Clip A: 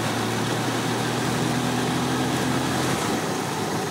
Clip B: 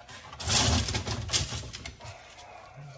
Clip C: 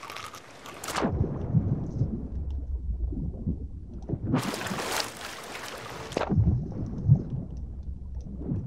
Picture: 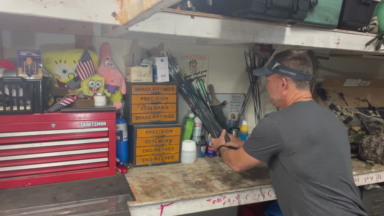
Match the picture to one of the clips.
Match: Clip B